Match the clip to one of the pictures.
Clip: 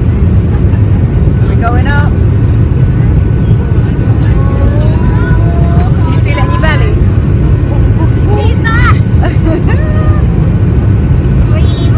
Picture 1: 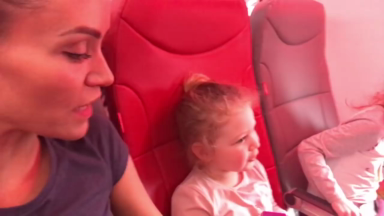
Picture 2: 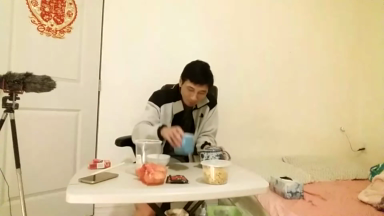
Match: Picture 1